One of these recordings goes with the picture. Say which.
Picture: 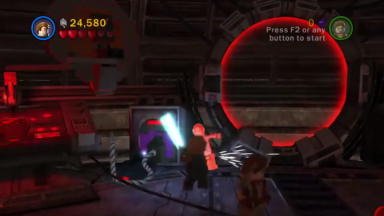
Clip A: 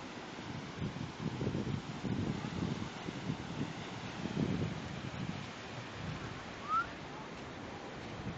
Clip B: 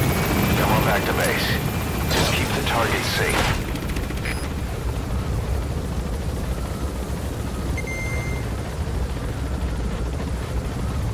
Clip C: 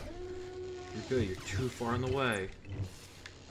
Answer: C